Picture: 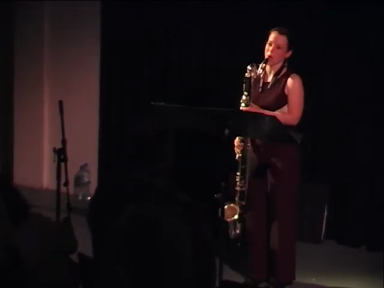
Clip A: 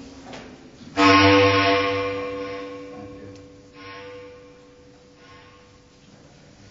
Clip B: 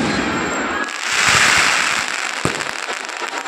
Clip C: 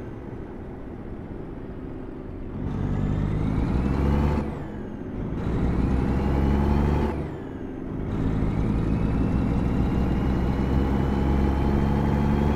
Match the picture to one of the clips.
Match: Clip A